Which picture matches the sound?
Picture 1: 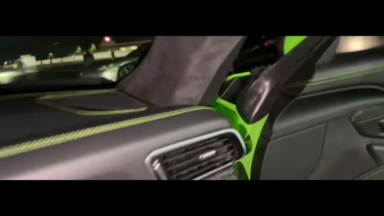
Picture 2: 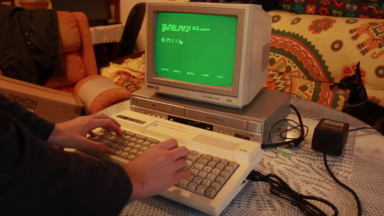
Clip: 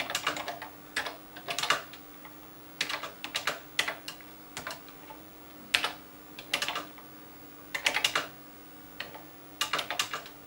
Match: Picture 2